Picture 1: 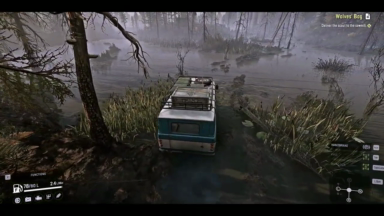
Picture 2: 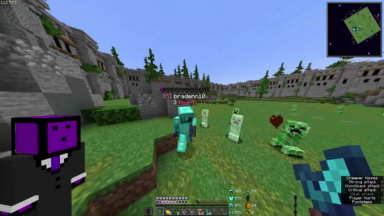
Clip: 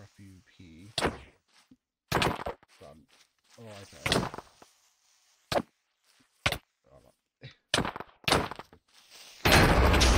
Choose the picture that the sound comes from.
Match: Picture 2